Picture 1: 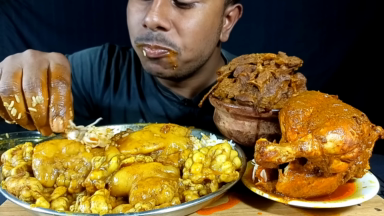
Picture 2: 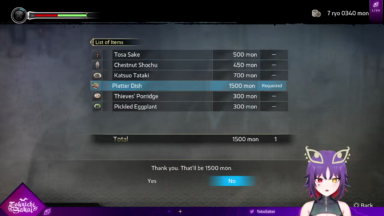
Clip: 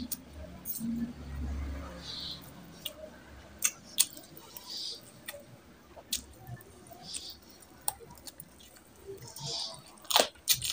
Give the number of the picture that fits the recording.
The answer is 1